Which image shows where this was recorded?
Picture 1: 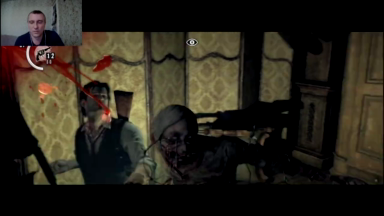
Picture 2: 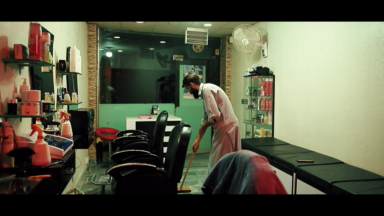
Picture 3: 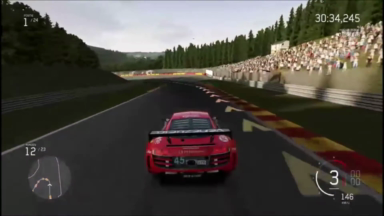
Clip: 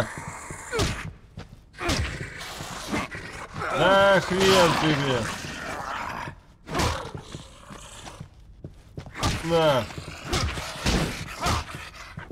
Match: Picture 1